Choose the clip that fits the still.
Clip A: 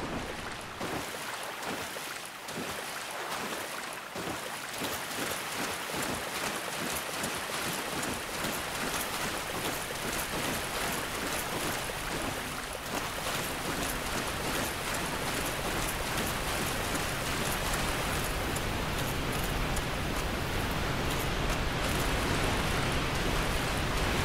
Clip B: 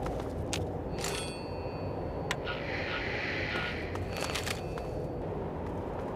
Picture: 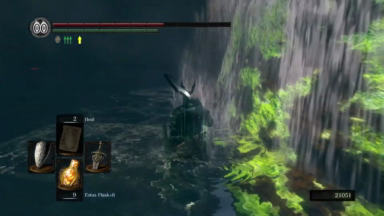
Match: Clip A